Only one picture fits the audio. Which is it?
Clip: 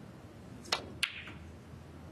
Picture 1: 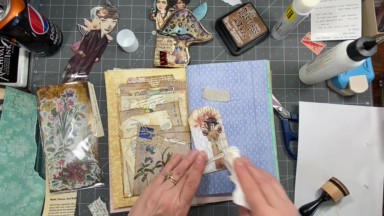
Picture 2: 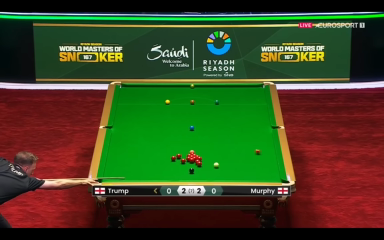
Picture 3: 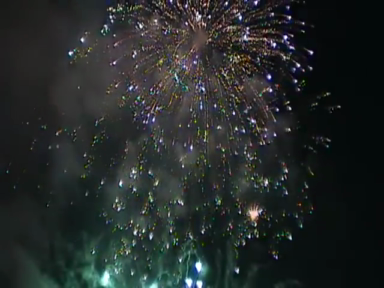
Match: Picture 2